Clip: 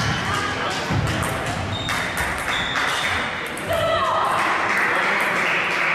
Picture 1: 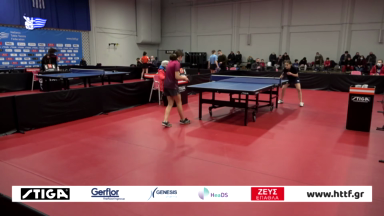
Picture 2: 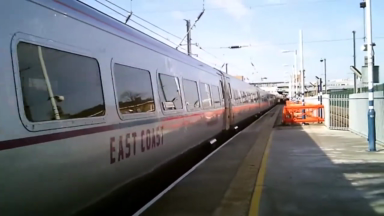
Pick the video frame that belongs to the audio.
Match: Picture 1